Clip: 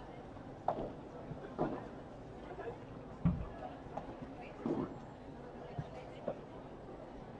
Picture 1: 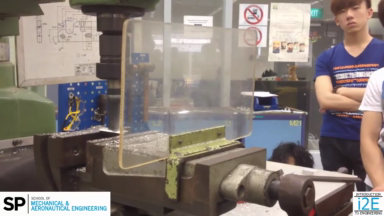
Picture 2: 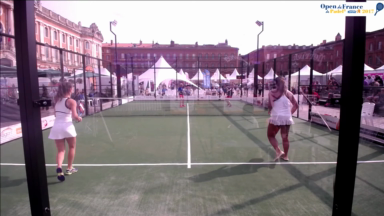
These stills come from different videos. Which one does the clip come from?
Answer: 2